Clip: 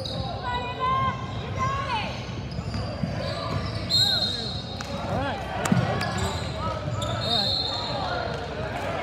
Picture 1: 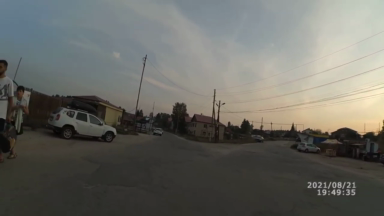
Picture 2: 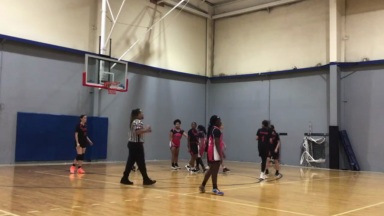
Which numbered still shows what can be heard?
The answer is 2